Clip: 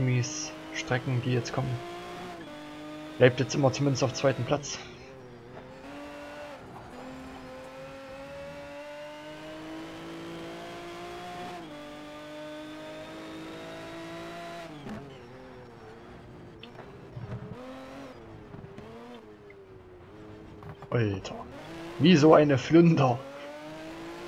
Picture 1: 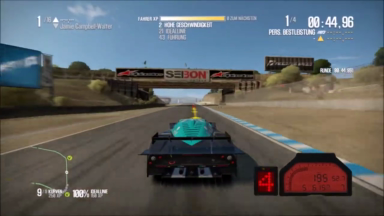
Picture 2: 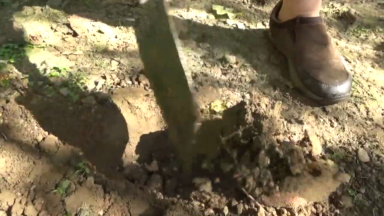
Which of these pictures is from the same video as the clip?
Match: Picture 1